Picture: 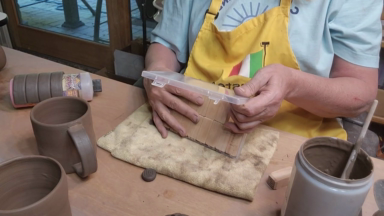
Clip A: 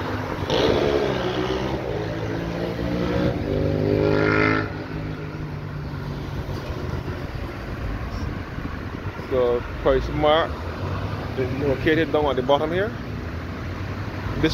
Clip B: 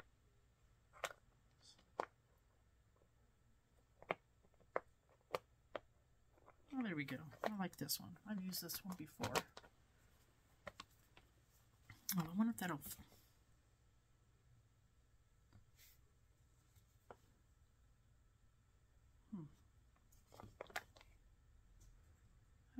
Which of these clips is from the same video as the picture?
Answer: B